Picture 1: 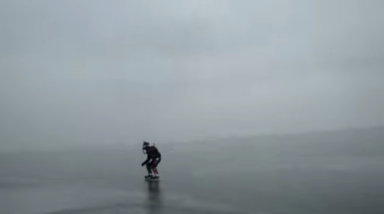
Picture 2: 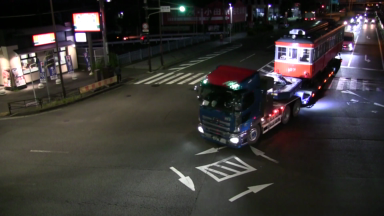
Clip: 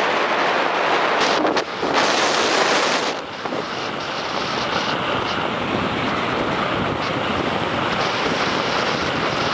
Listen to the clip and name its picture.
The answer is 1